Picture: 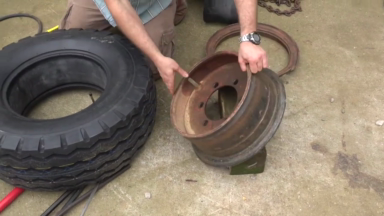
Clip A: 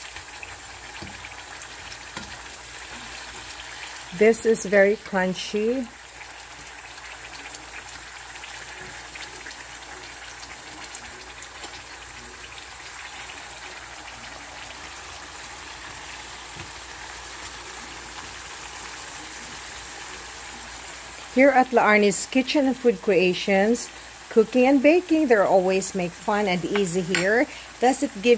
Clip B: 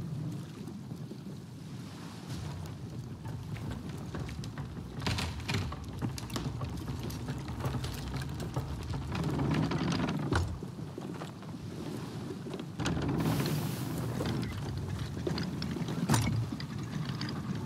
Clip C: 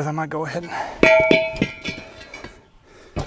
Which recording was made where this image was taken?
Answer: C